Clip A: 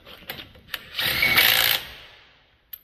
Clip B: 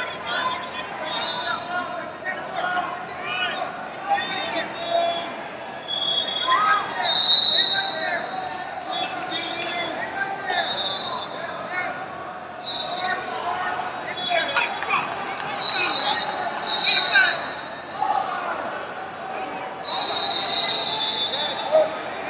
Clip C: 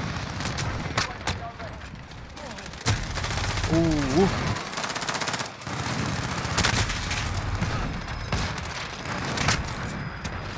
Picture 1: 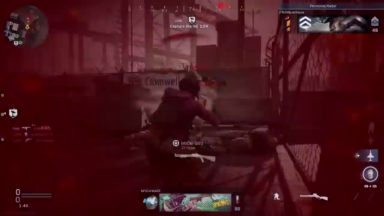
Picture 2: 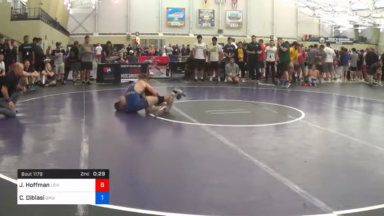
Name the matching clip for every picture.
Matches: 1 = C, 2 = B